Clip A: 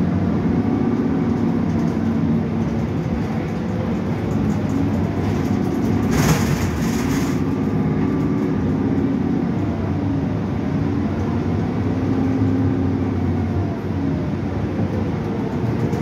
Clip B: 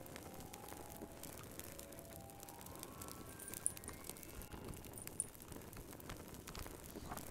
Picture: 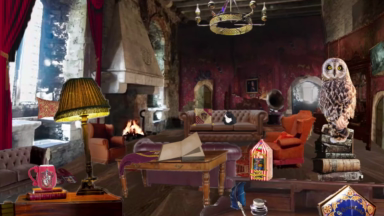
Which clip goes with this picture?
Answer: B